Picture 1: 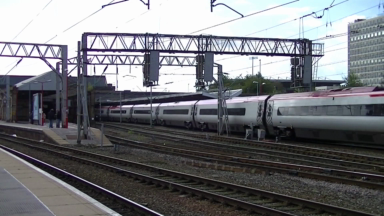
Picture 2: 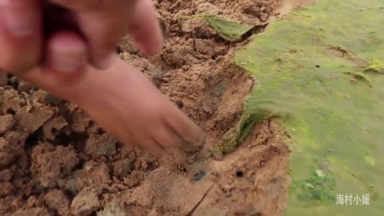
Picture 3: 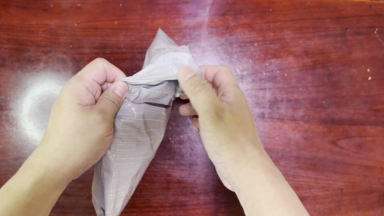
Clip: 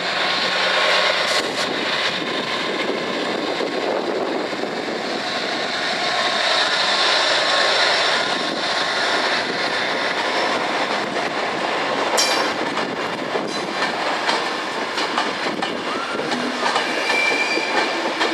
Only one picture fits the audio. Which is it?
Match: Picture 1